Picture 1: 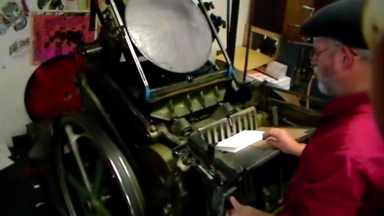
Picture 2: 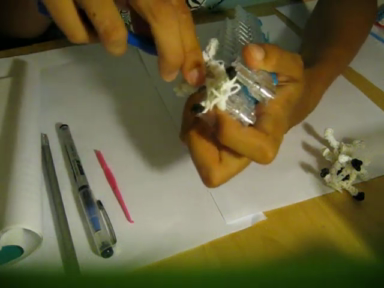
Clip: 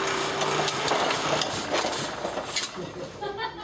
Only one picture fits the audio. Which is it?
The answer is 1